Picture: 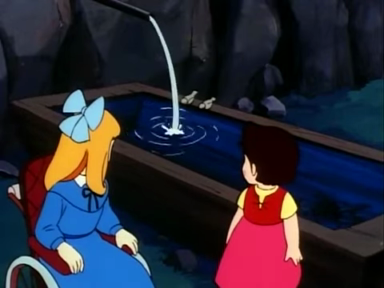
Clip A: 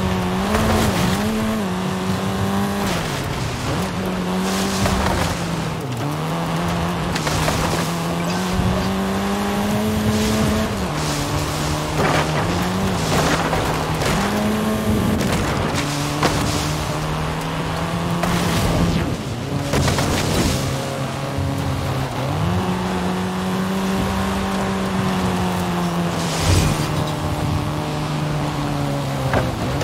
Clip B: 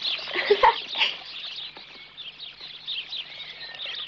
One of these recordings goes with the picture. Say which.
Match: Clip B